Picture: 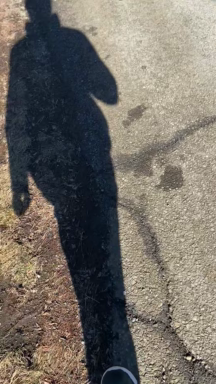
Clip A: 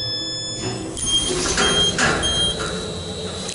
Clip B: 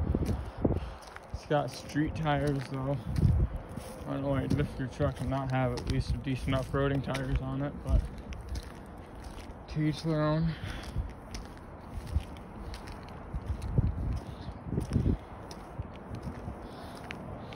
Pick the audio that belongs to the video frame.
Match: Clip B